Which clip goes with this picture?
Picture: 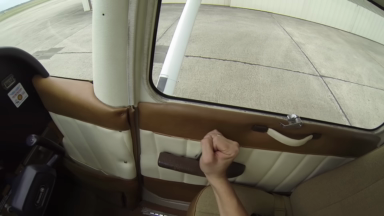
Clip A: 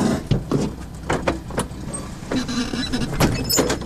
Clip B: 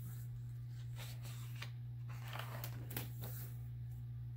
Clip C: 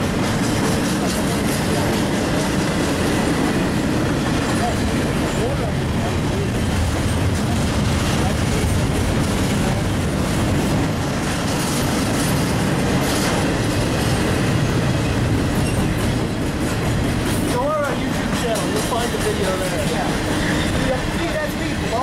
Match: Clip A